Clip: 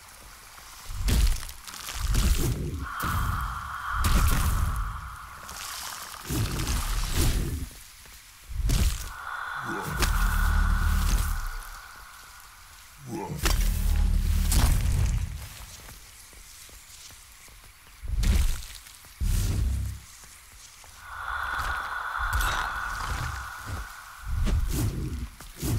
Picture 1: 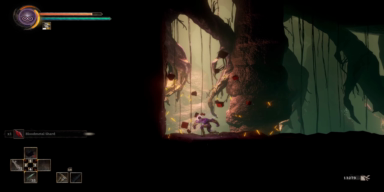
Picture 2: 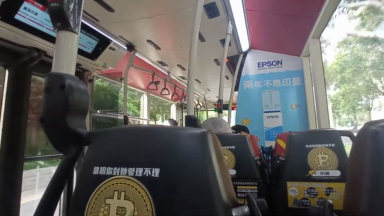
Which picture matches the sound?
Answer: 1